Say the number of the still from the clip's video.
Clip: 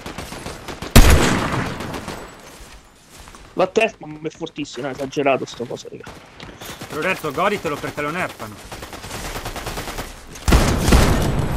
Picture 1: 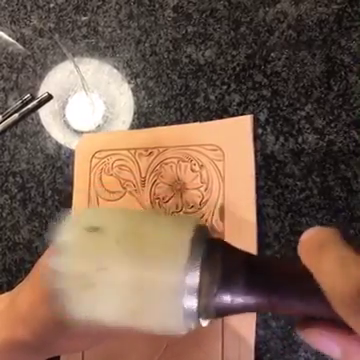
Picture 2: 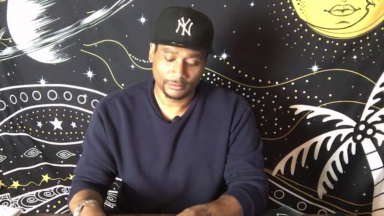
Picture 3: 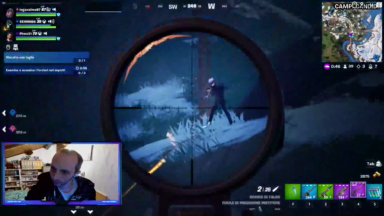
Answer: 3